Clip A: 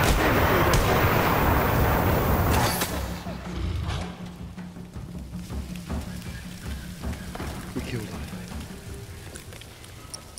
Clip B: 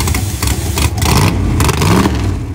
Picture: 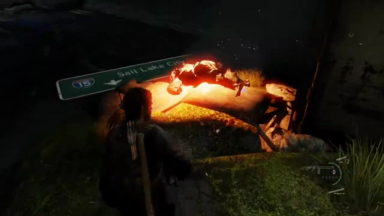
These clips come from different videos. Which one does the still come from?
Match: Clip A